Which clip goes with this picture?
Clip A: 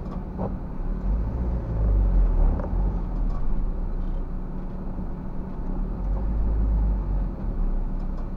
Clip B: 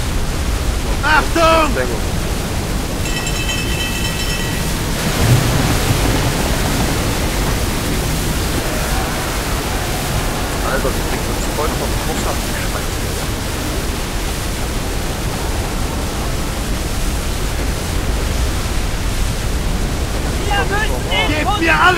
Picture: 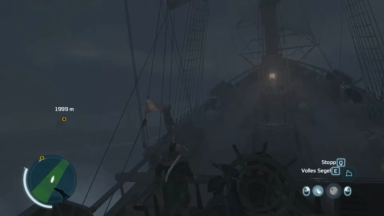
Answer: B